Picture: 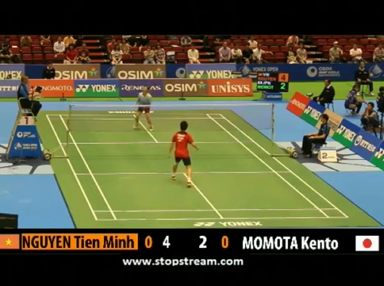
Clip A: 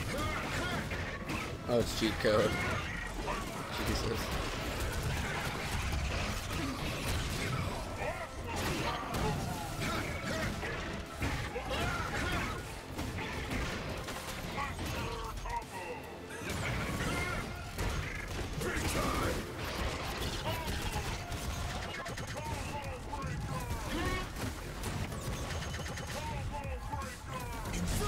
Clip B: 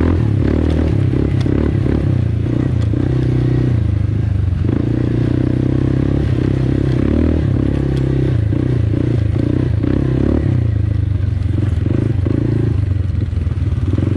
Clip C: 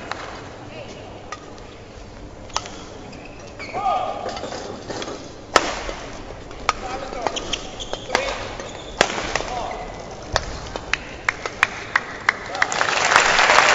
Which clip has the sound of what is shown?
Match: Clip C